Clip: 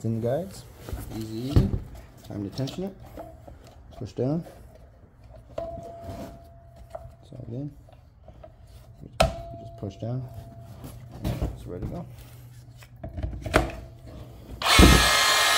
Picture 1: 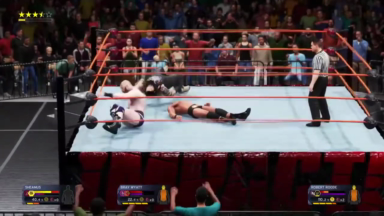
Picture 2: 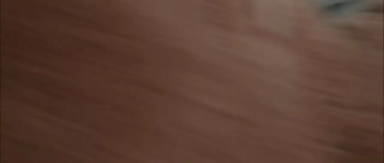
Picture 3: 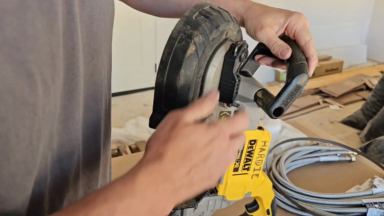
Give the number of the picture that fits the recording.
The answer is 3